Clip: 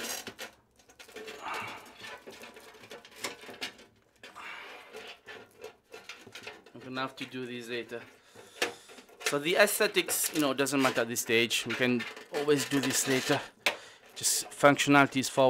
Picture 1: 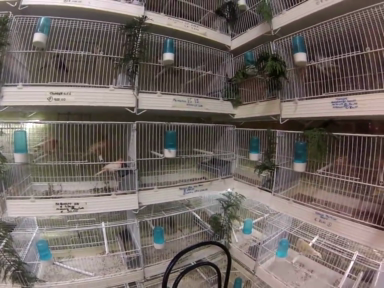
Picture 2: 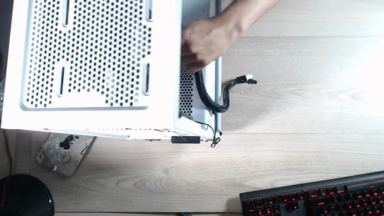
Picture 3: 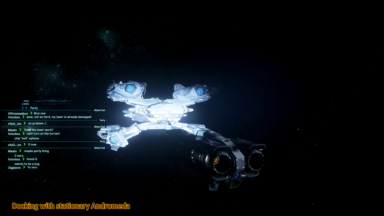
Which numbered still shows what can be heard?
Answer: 2